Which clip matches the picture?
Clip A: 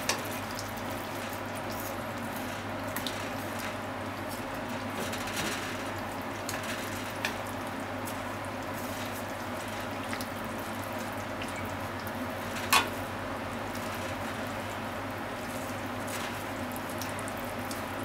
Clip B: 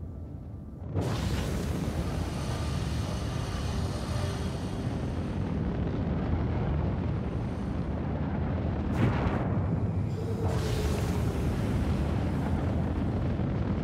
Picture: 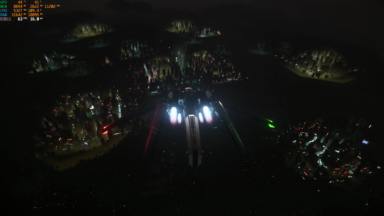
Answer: B